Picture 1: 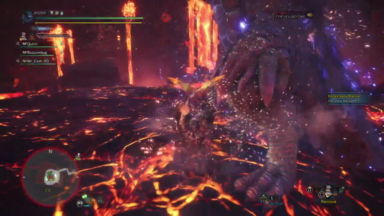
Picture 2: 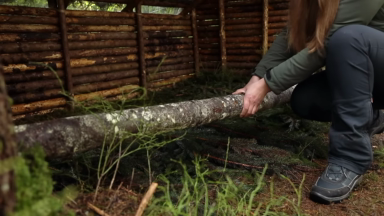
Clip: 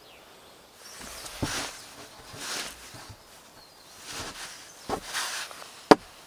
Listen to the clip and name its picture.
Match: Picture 2